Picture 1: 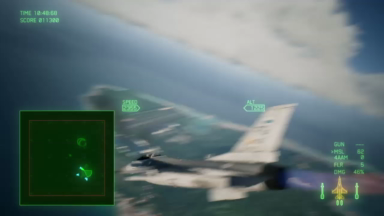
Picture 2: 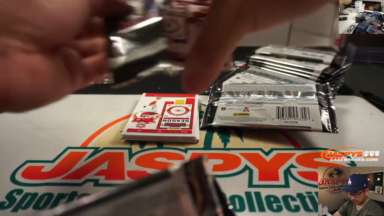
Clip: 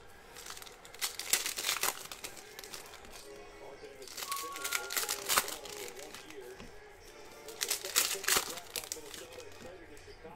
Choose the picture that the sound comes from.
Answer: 2